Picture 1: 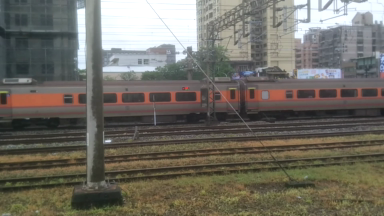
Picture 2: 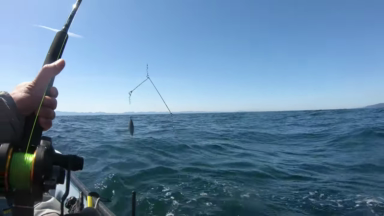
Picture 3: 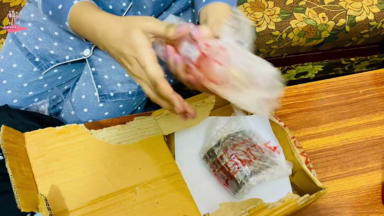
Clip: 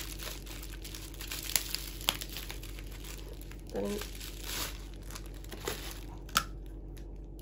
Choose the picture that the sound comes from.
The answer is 3